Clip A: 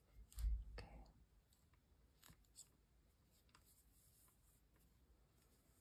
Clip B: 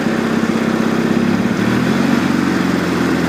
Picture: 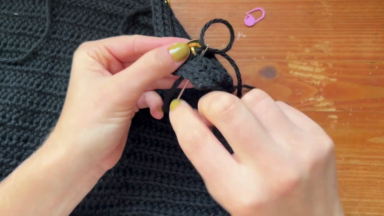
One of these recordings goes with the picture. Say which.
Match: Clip A